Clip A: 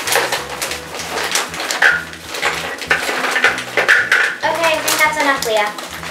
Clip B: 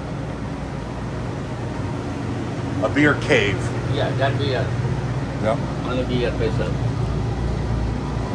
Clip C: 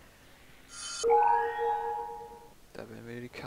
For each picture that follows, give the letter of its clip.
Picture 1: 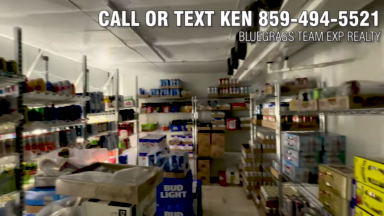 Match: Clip B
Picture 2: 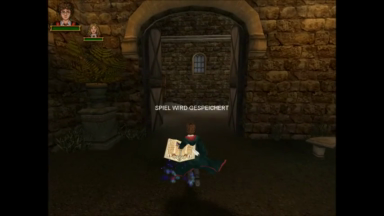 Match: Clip C